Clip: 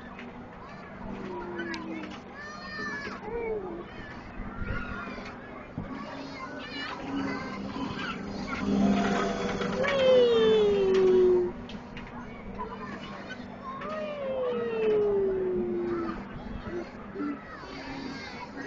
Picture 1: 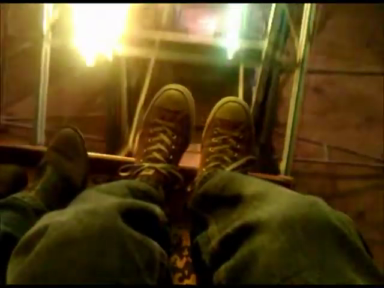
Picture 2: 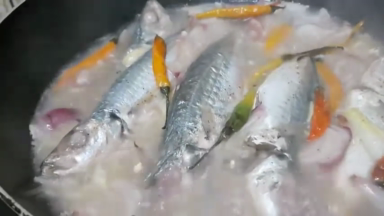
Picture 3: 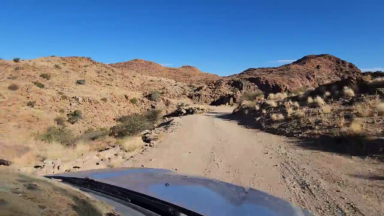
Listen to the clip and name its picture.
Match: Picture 1